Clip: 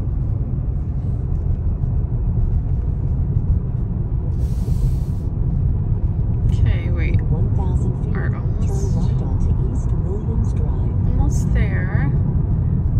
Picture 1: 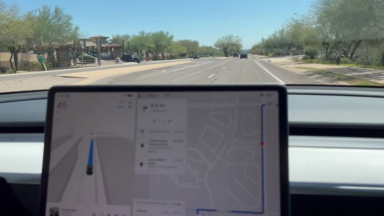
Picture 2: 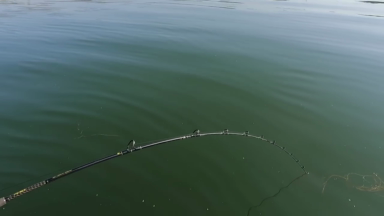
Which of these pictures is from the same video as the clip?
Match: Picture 1